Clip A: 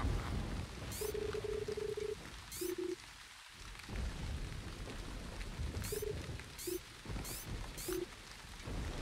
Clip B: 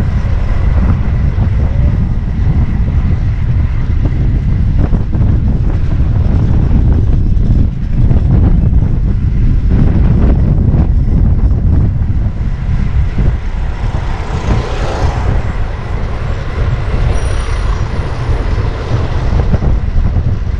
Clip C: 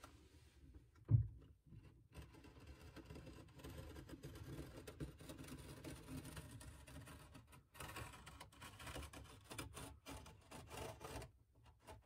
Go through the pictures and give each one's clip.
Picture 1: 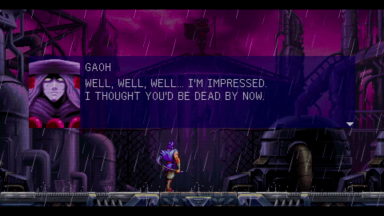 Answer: A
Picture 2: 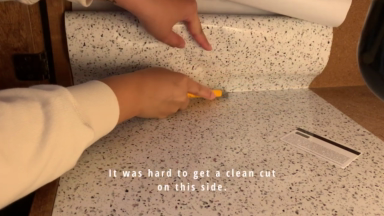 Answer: C